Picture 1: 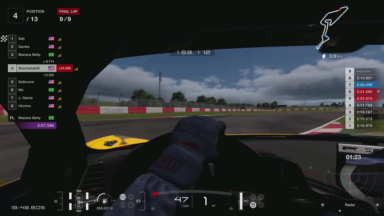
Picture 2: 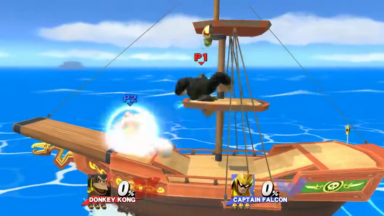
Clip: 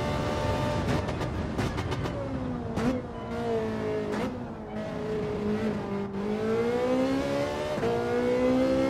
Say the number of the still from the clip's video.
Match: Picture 1